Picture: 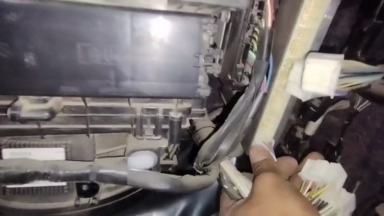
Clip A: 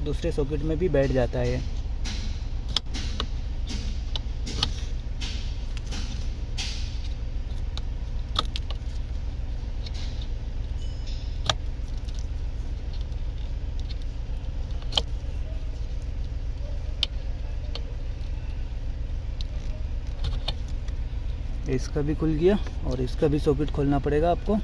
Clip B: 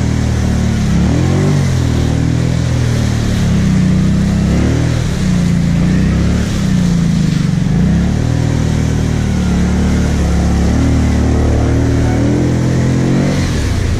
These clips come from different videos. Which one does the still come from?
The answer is A